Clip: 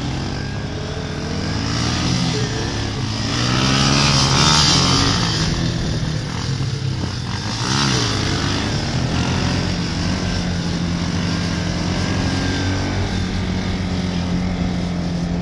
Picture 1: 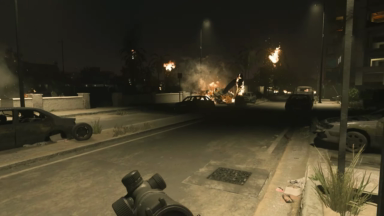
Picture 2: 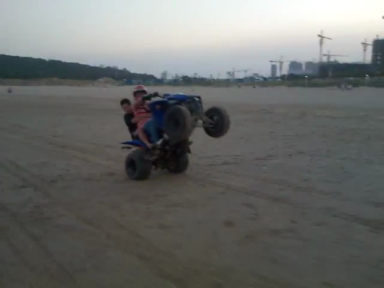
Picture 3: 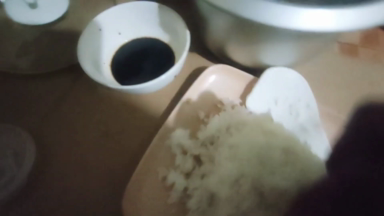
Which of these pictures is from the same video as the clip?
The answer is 2